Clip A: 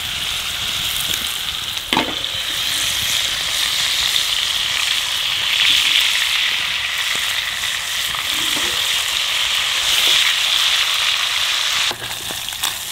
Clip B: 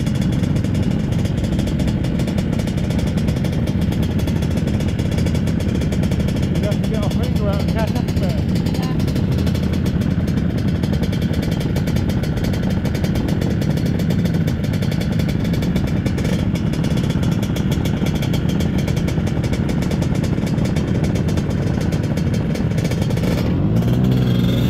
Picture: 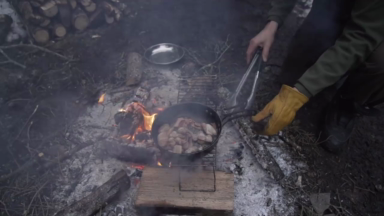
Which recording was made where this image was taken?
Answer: A